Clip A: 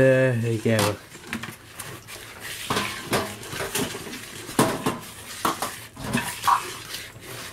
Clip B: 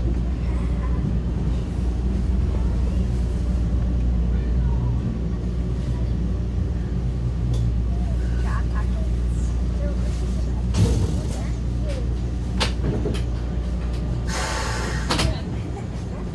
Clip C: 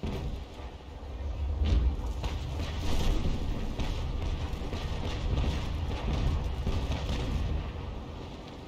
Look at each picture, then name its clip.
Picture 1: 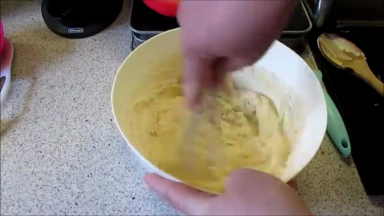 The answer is A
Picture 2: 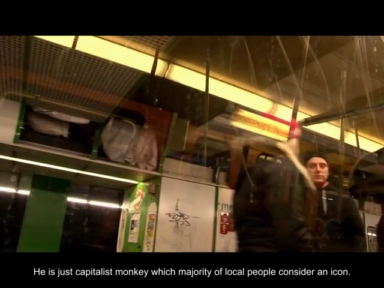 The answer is B